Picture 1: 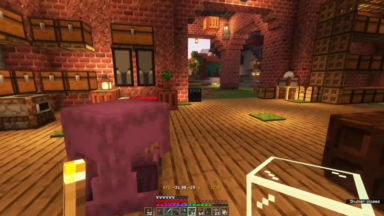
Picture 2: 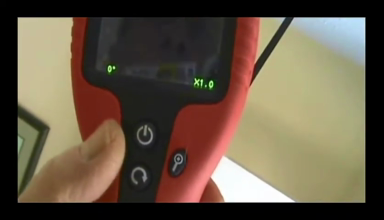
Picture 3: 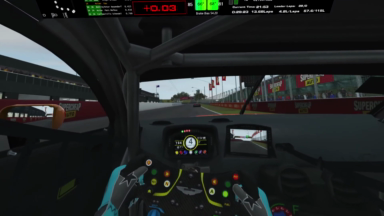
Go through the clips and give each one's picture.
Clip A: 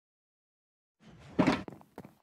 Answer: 1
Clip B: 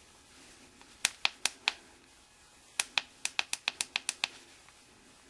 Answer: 2